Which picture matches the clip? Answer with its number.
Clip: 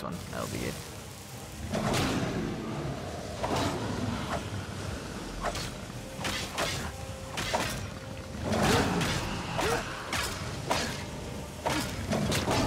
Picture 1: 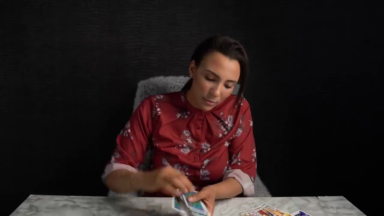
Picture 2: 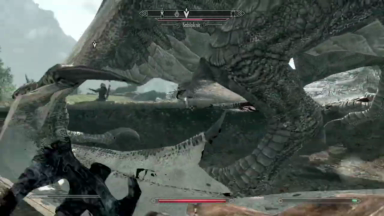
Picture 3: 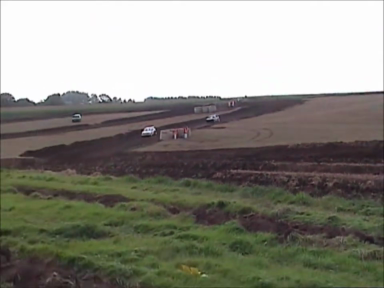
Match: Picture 2